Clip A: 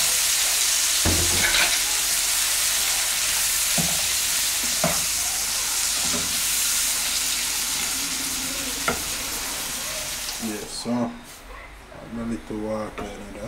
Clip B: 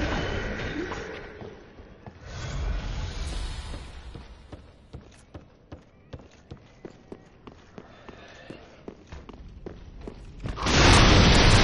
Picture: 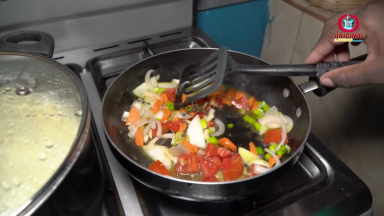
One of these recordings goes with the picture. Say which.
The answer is A